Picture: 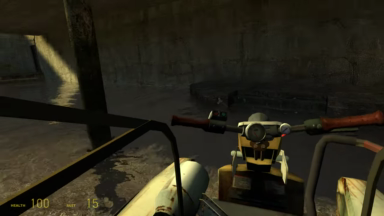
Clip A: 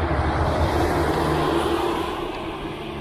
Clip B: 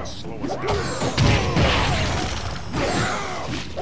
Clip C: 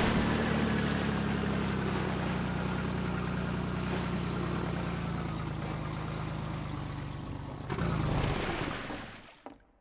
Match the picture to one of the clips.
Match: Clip C